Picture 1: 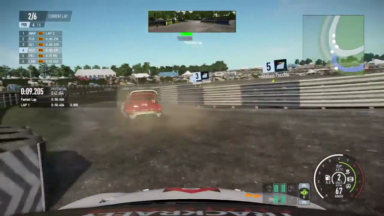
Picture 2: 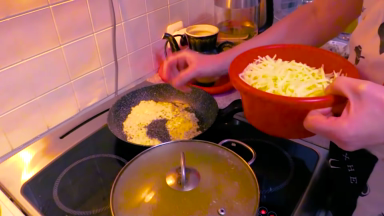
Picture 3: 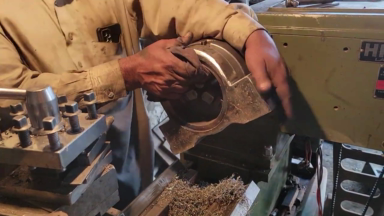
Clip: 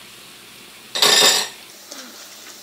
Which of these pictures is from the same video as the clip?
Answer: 2